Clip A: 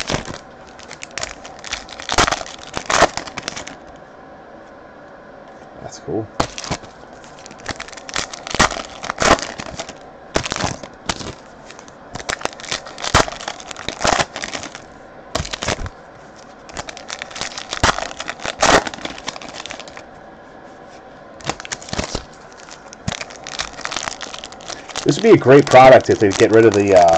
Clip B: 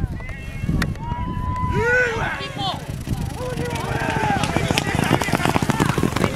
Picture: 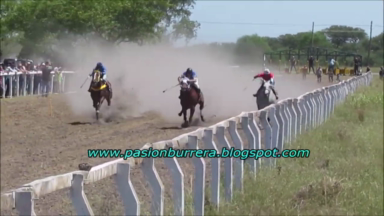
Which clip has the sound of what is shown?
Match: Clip B